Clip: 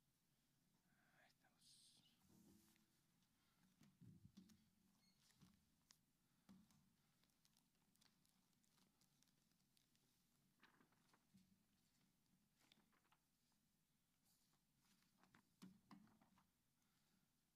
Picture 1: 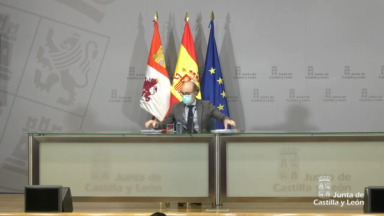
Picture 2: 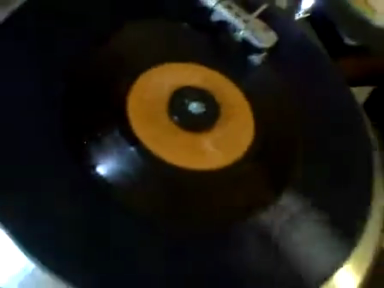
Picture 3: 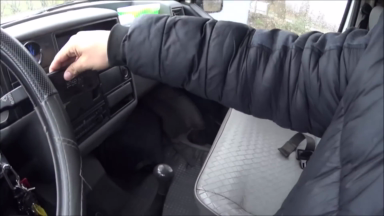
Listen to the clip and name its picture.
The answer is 1